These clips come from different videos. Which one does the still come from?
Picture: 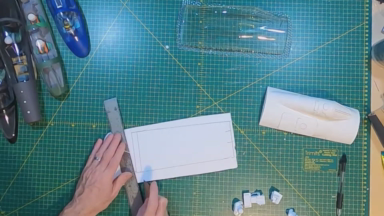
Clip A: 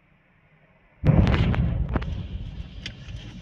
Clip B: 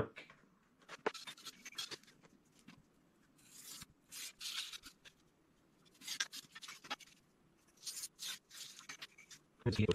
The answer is B